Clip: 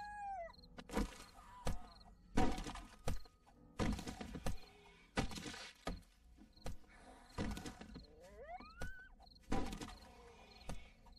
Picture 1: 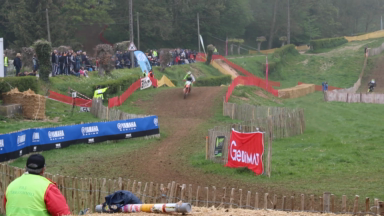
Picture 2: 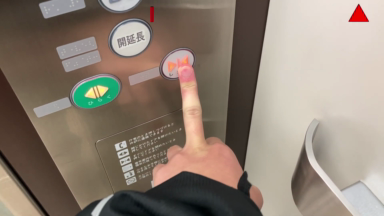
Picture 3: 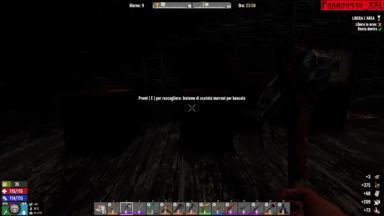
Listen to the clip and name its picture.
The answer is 3